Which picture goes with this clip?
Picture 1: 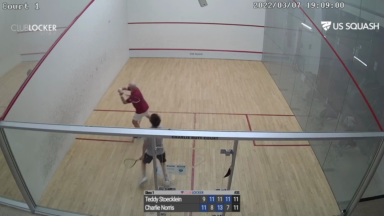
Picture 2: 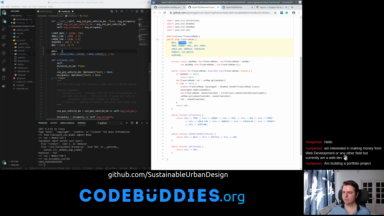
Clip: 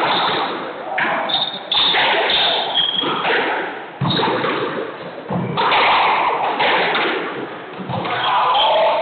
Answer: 1